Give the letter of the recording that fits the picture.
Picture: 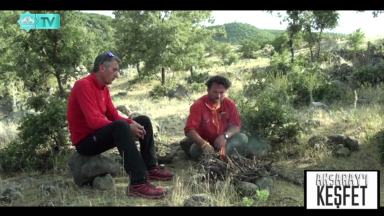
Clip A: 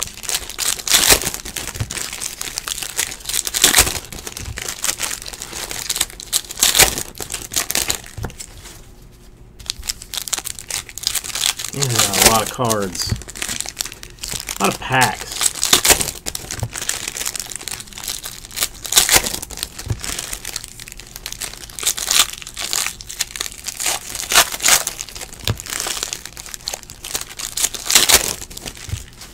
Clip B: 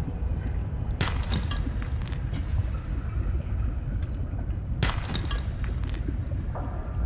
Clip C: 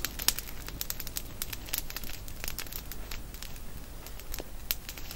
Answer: C